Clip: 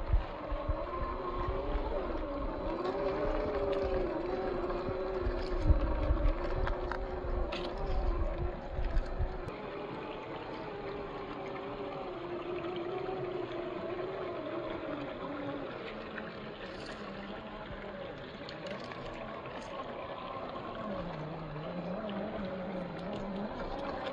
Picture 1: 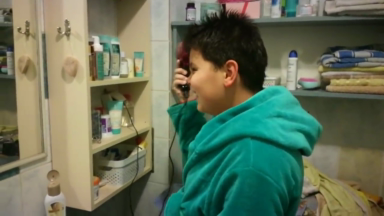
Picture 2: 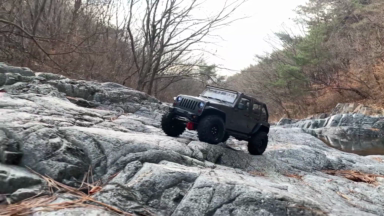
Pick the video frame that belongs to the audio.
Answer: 2